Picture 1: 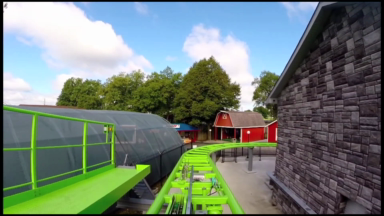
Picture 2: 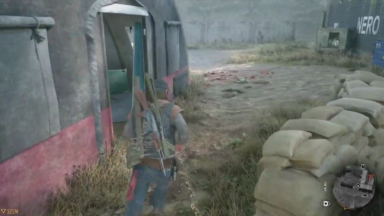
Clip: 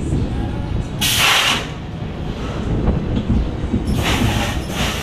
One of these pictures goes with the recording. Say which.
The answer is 1